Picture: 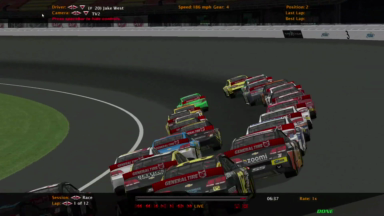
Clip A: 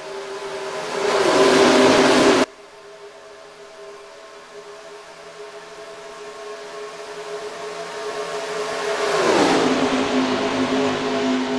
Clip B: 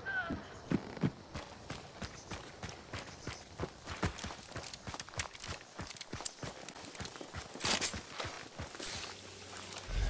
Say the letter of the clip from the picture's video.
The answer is A